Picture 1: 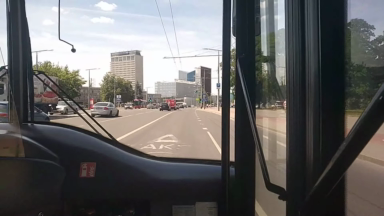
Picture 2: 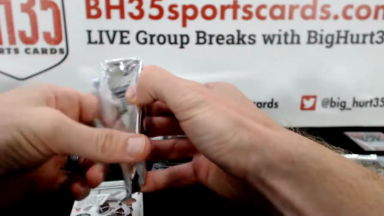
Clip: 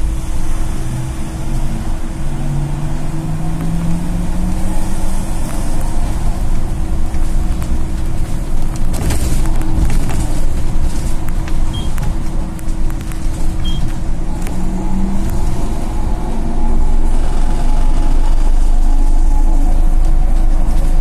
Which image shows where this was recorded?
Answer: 1